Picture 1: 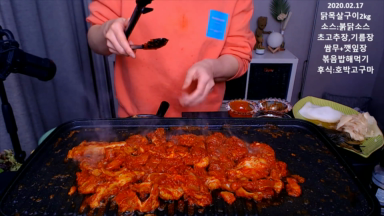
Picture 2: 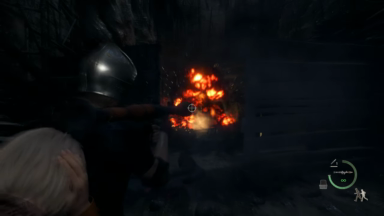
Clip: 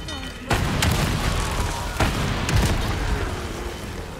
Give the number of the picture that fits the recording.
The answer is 2